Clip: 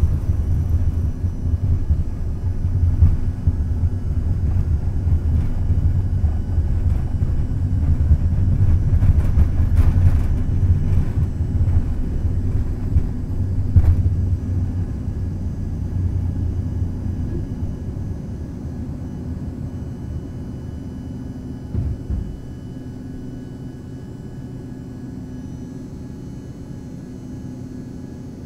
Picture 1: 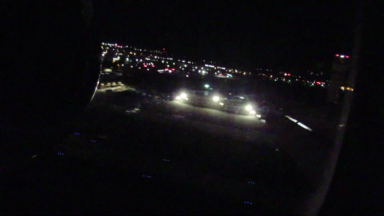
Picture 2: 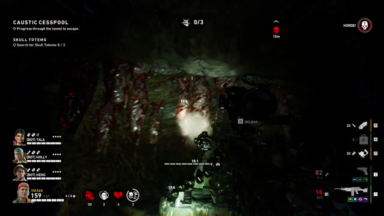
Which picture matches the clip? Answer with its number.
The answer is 1